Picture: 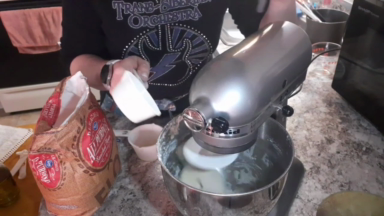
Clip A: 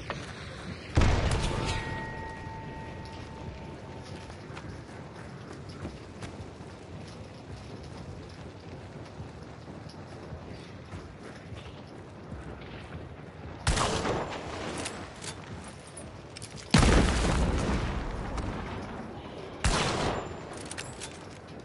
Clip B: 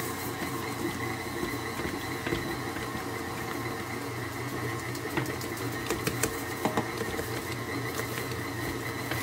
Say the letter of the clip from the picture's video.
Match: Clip B